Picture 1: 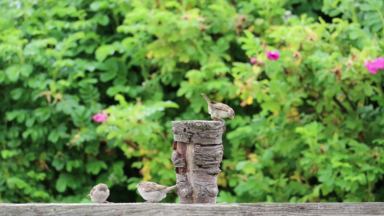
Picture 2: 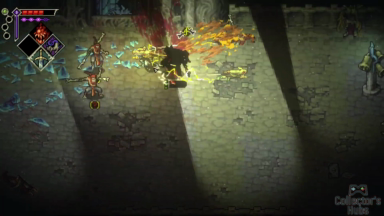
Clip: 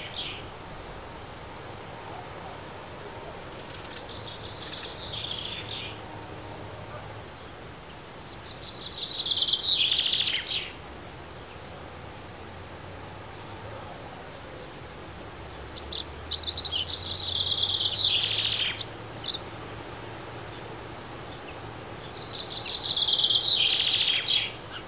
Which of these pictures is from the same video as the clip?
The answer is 1